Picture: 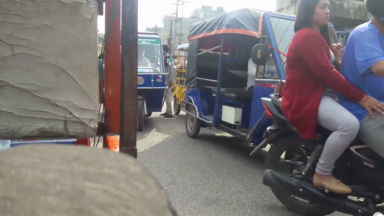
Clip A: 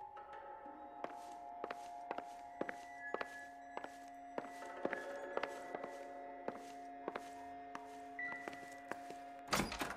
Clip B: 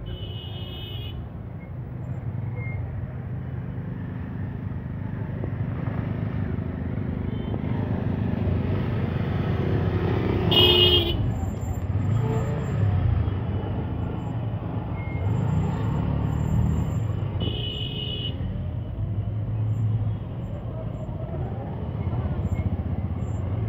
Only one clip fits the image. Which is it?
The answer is B